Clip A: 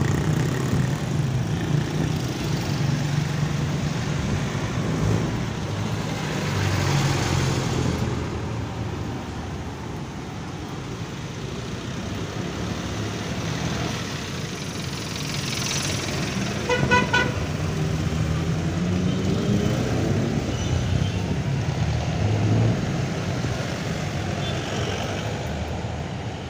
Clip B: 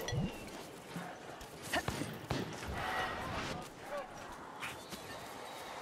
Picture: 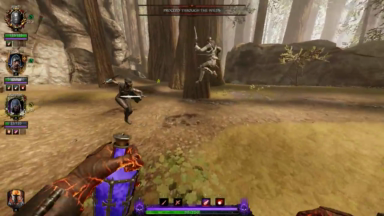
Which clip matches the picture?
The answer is B